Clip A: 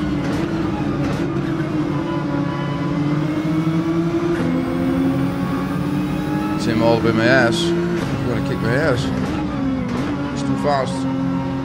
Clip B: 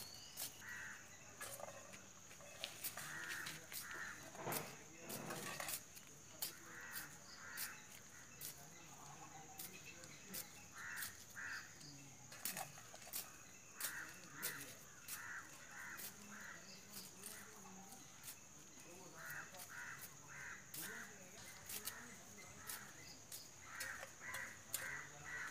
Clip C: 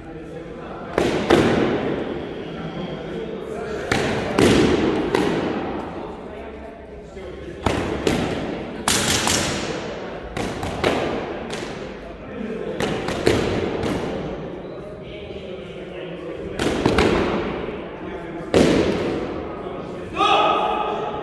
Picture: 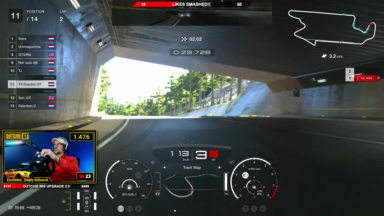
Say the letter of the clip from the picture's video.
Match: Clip A